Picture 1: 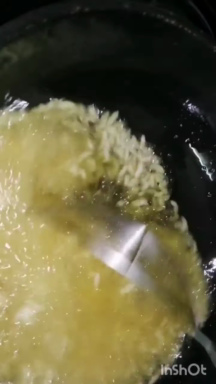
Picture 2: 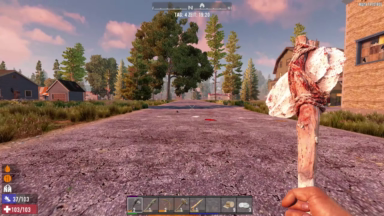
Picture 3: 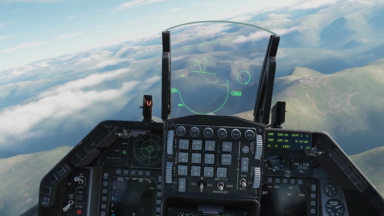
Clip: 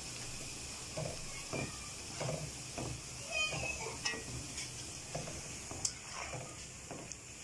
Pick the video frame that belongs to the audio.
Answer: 1